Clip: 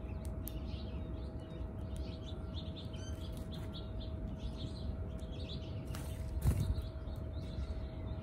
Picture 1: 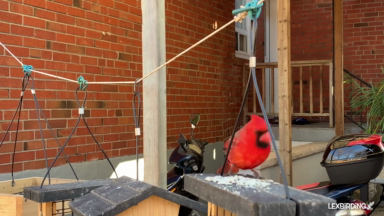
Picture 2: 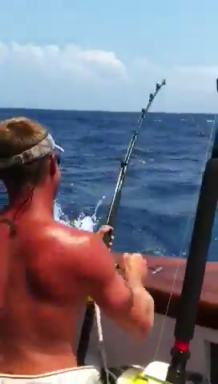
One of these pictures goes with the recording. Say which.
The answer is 1